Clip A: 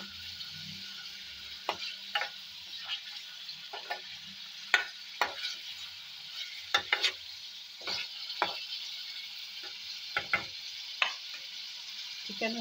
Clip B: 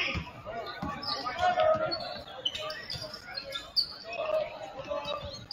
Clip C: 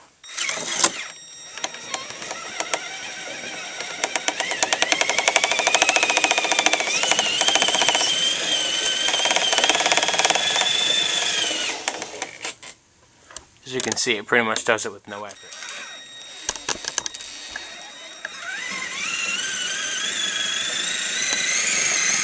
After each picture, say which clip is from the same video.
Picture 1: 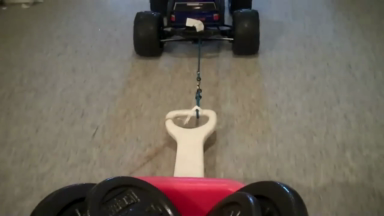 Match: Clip C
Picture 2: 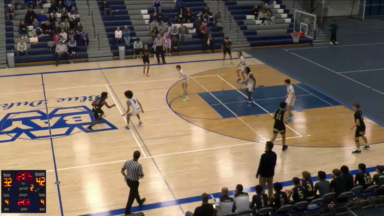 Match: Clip B